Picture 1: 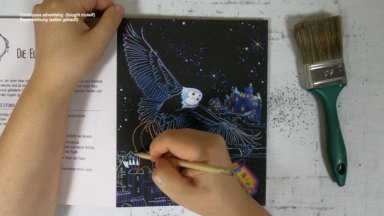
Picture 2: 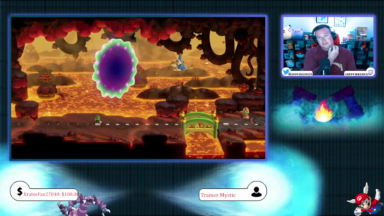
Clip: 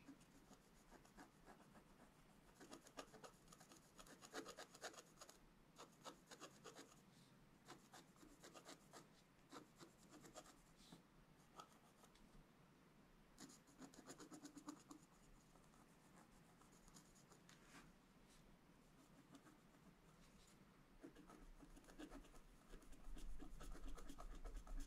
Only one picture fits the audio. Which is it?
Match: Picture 1